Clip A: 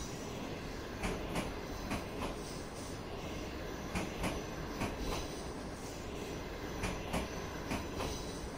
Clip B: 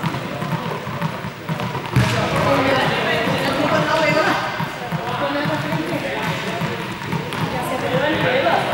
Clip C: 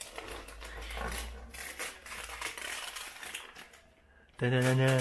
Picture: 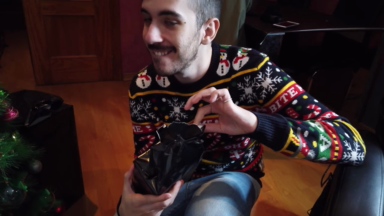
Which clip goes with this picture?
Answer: C